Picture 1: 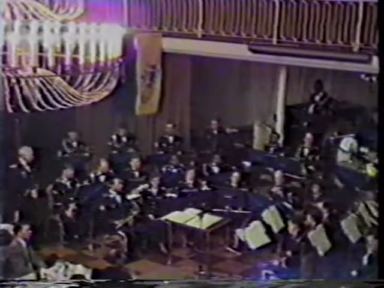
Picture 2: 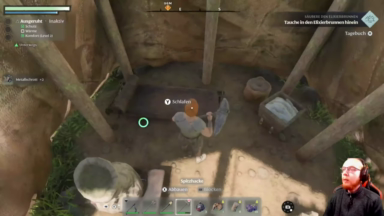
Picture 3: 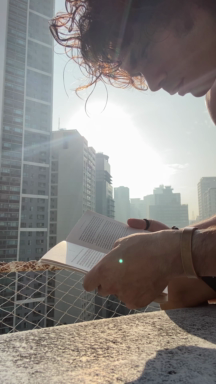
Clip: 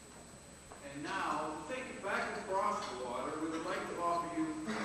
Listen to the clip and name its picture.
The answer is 1